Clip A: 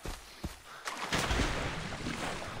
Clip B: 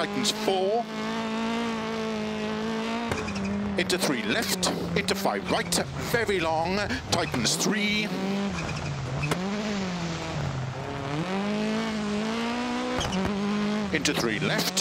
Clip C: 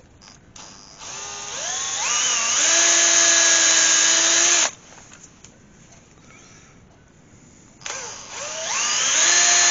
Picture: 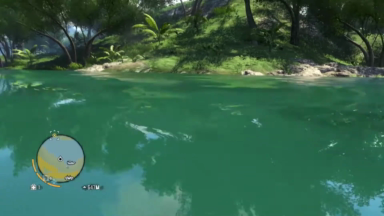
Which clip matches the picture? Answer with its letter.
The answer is A